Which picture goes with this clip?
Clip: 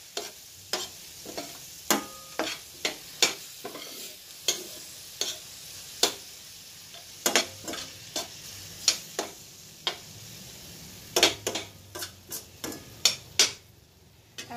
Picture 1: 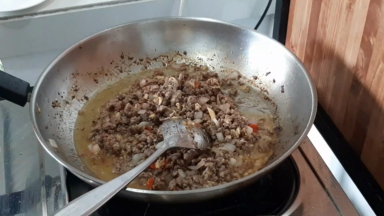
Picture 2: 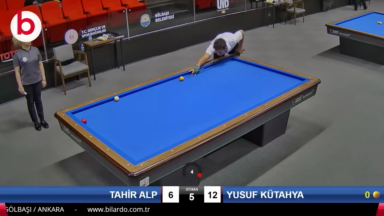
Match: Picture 1